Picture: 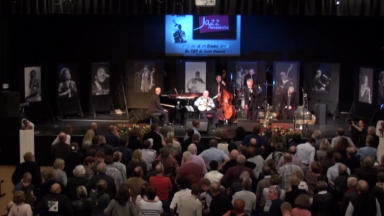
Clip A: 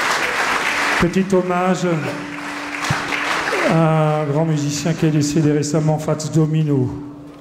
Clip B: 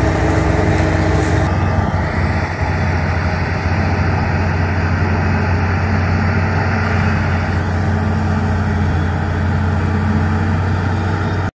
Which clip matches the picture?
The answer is A